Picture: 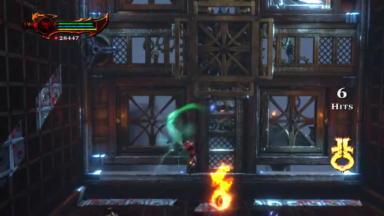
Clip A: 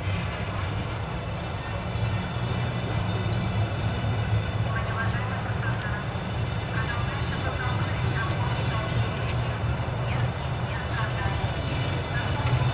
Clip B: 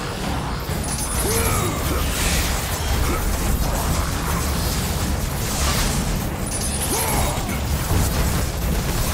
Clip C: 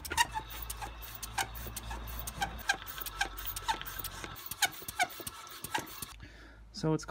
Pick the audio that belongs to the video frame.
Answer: B